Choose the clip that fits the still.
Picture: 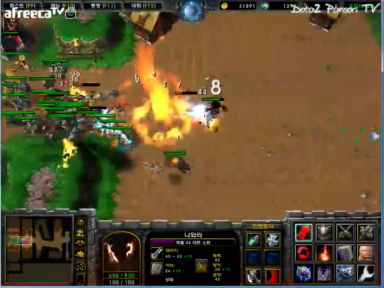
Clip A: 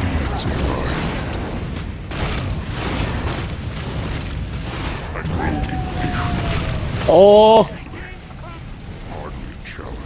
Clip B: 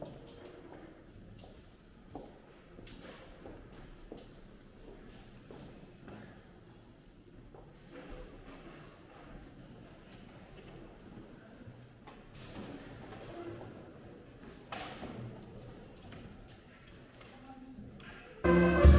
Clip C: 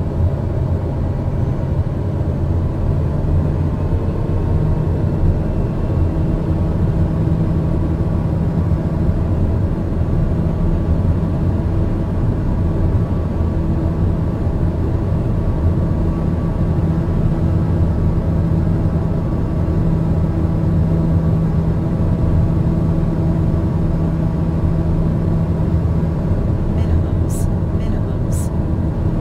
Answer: A